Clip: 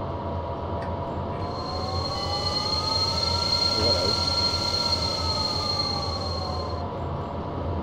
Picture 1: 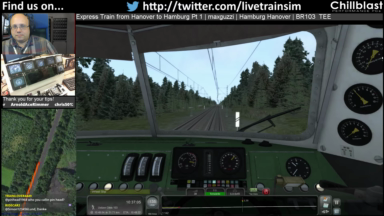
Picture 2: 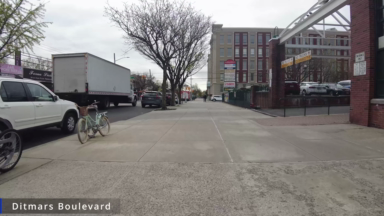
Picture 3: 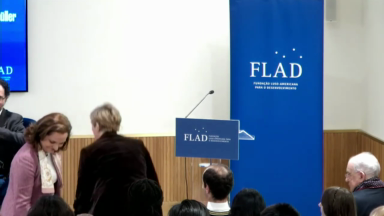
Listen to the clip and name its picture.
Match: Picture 1